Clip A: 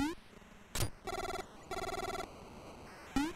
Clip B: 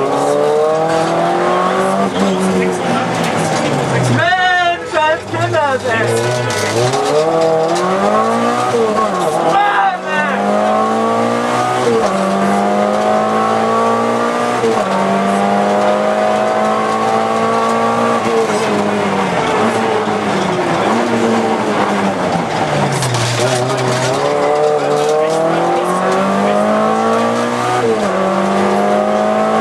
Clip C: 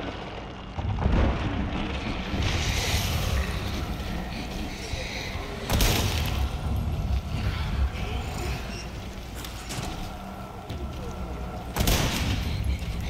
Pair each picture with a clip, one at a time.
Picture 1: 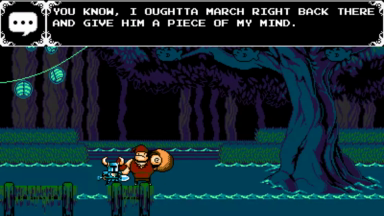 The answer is A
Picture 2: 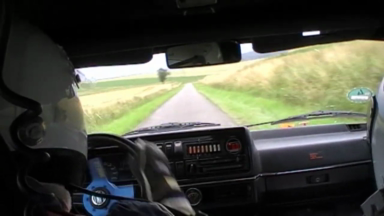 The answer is B